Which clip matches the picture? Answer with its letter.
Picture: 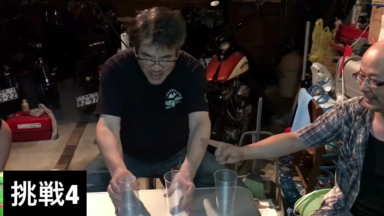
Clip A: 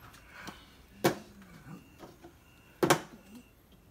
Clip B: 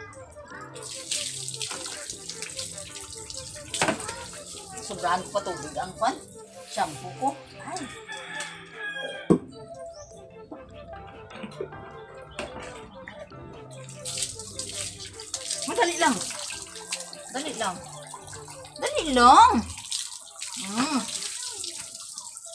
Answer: A